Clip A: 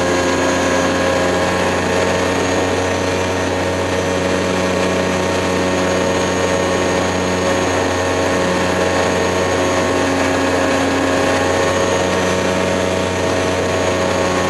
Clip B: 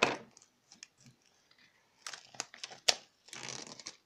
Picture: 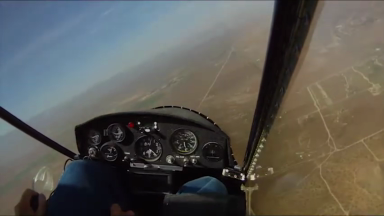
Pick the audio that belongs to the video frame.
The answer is A